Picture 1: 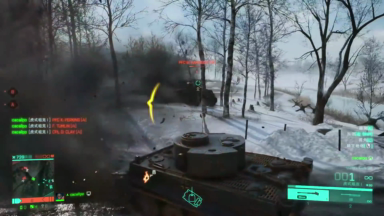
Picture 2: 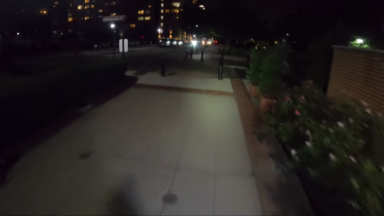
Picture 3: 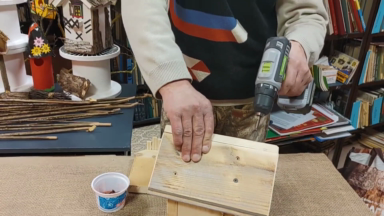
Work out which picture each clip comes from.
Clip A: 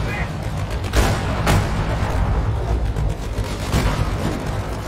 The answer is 1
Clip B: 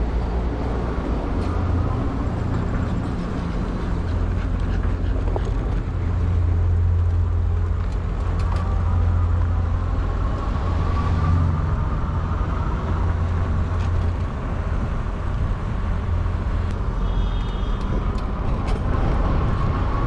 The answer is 2